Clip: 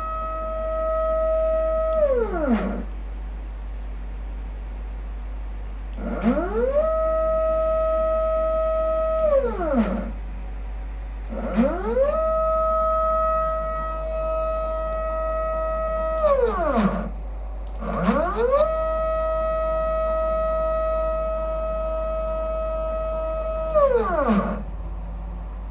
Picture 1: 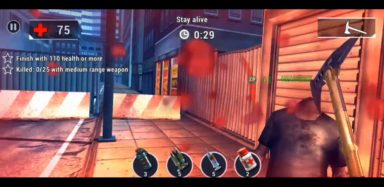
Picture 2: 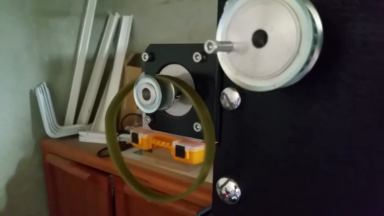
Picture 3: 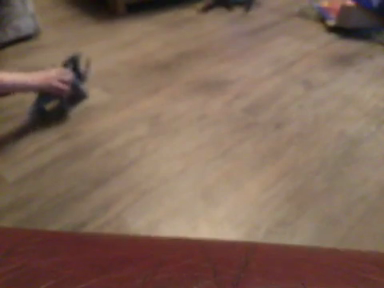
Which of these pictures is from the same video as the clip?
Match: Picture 2